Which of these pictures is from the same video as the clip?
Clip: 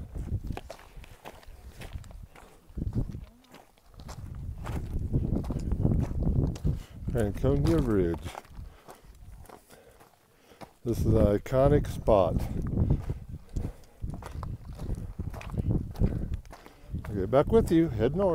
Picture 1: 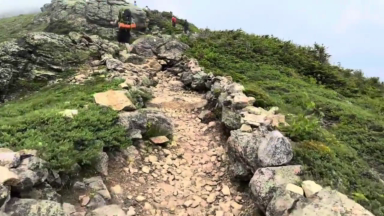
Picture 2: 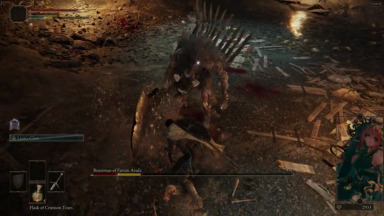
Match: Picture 1